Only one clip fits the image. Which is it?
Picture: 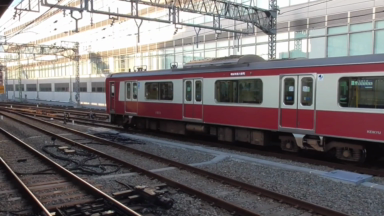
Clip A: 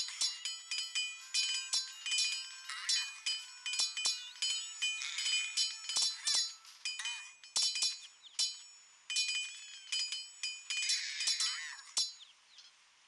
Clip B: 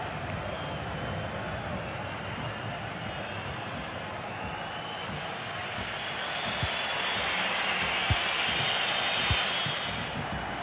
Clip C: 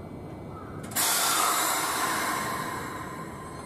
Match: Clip C